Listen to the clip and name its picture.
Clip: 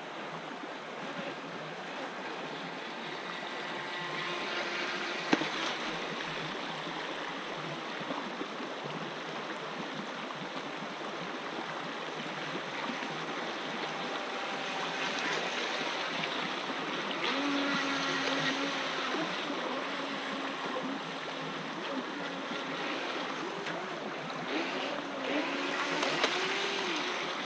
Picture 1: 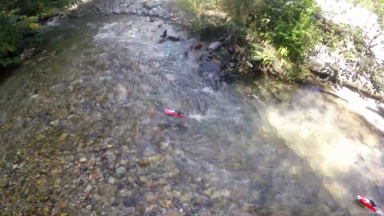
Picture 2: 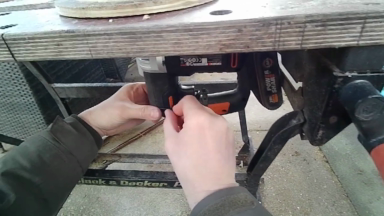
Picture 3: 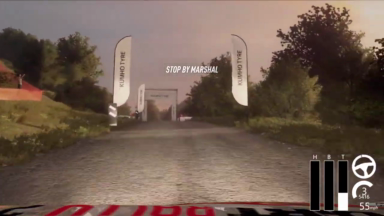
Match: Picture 1